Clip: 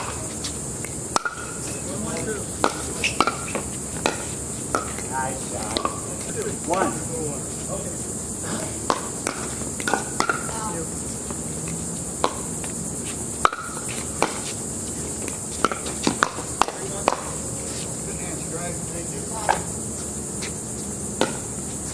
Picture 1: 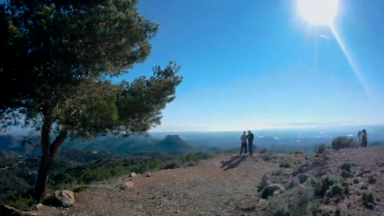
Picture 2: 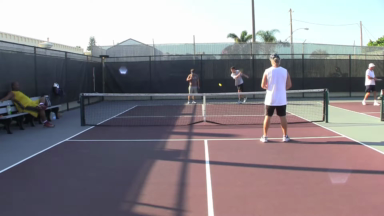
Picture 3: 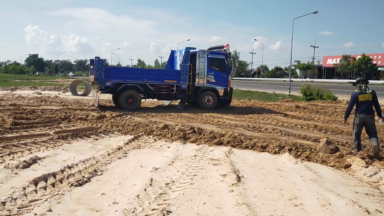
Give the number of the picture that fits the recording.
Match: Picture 2